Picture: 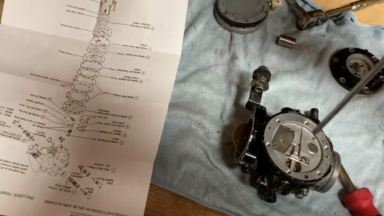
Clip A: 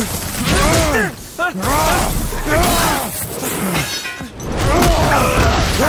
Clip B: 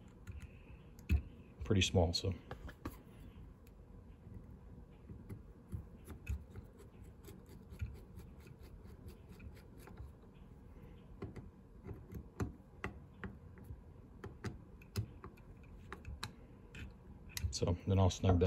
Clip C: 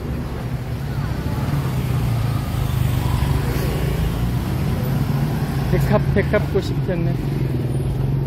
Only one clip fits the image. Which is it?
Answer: B